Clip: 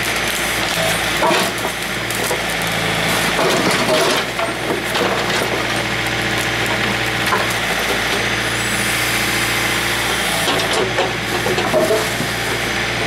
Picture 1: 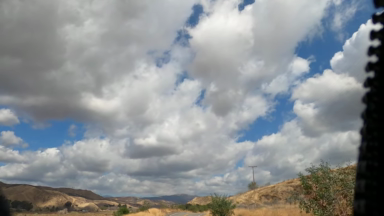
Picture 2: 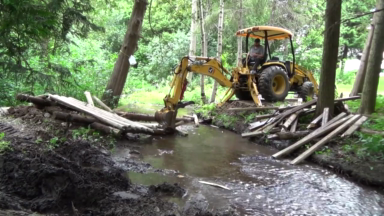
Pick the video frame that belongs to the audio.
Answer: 2